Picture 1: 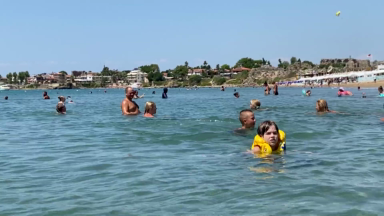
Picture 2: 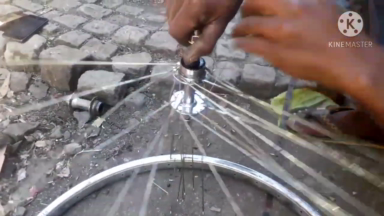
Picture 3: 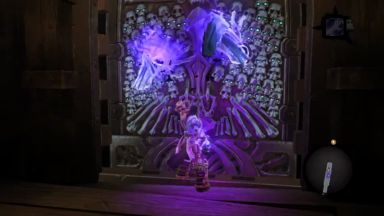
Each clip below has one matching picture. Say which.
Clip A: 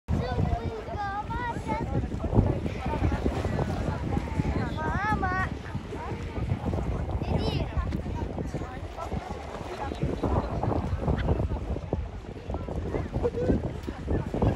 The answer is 1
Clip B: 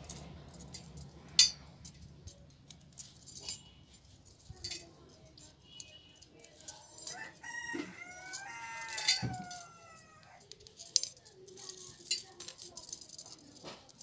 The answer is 2